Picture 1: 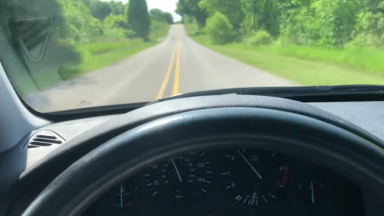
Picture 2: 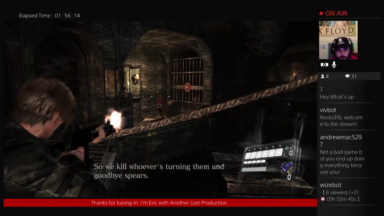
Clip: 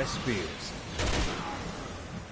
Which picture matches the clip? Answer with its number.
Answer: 2